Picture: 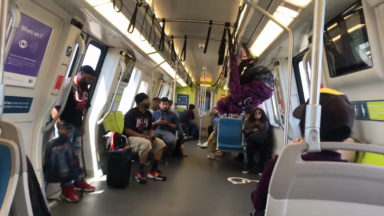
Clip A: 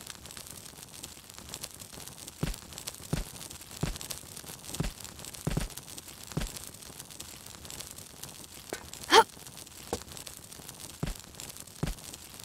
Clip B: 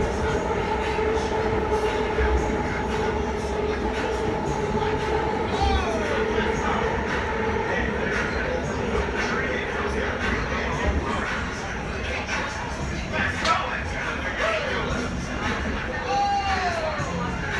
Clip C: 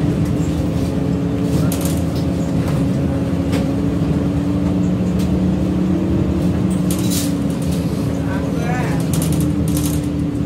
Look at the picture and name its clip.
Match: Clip B